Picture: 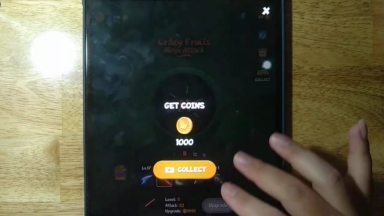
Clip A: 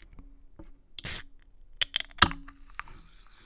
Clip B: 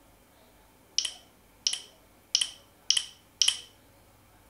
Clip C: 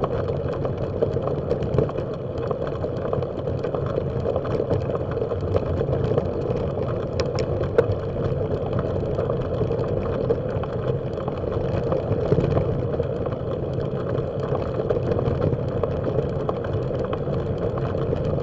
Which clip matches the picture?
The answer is B